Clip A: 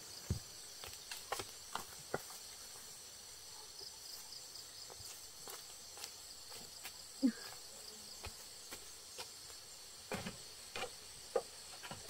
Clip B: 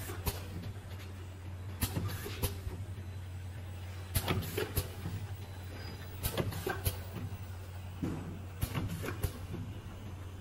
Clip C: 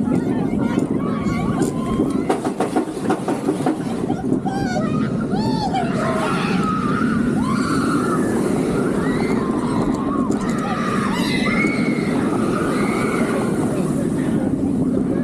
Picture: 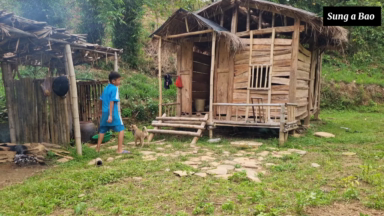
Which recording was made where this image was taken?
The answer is A